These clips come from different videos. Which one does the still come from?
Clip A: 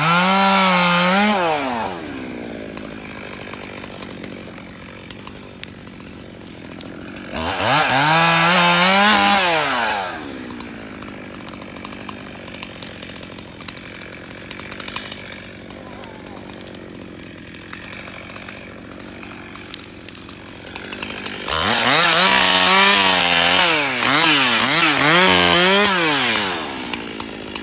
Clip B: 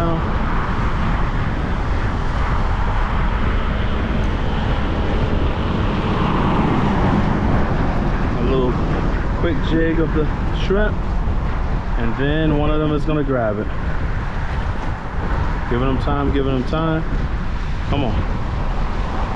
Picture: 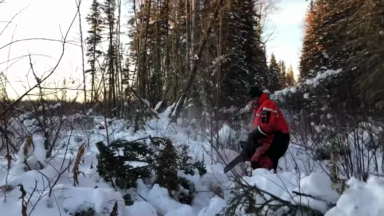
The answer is A